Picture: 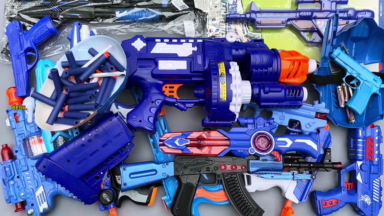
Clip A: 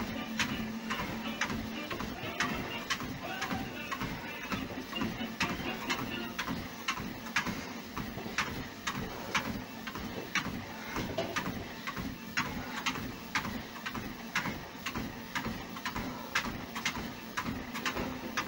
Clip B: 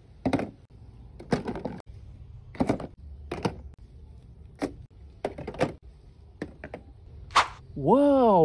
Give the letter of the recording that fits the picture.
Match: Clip B